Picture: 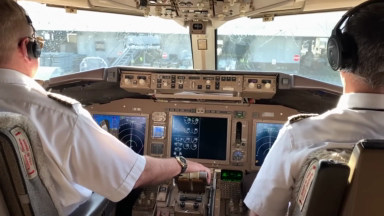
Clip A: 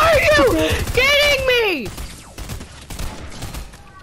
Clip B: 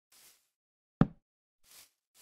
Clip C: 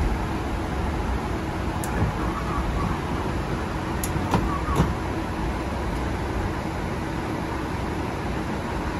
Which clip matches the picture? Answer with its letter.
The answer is C